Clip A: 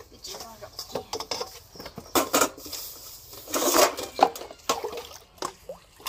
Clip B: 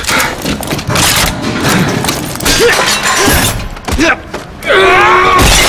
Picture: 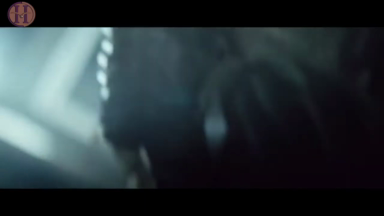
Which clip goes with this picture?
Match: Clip B